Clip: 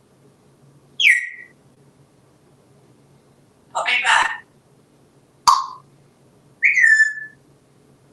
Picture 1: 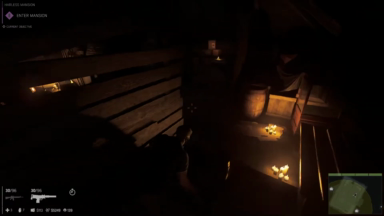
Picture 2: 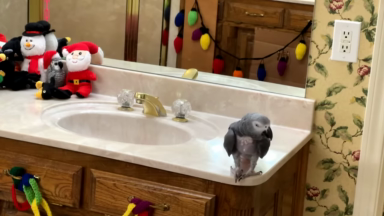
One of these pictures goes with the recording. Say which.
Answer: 2